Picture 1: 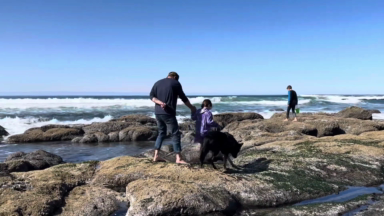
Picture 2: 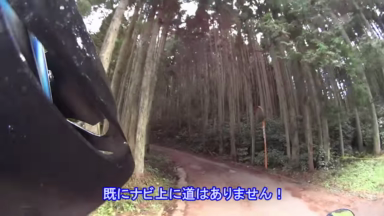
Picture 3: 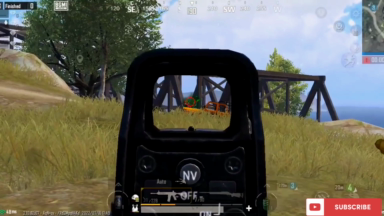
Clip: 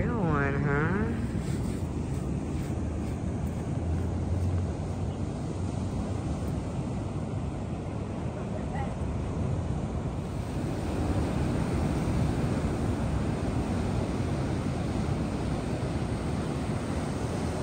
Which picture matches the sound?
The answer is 1